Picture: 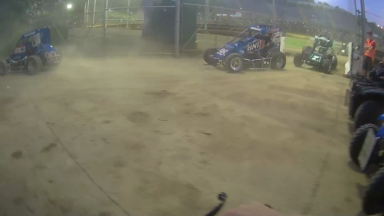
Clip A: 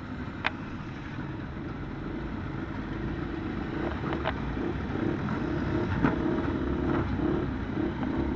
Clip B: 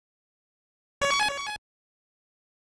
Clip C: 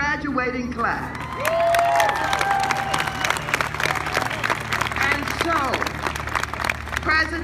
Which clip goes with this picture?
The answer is A